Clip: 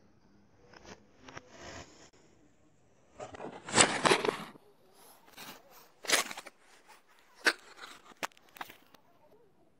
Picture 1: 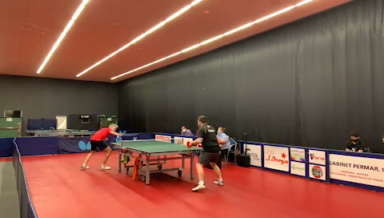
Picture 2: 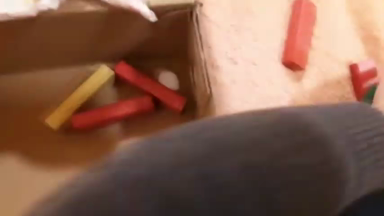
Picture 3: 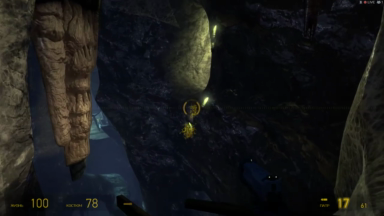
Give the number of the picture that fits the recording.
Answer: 2